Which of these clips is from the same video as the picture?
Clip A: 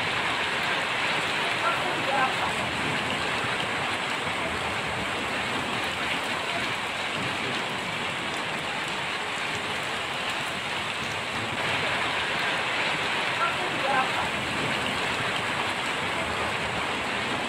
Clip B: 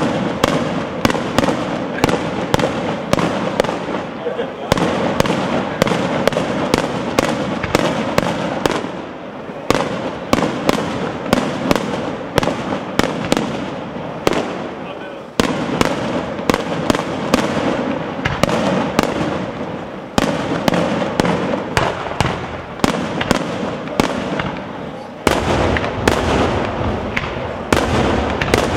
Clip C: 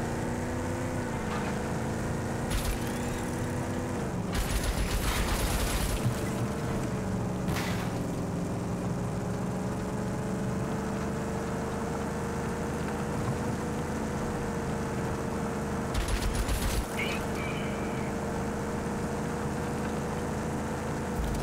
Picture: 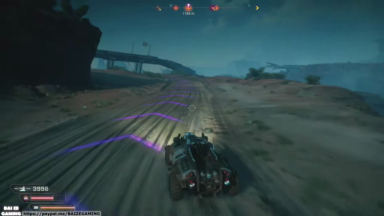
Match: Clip C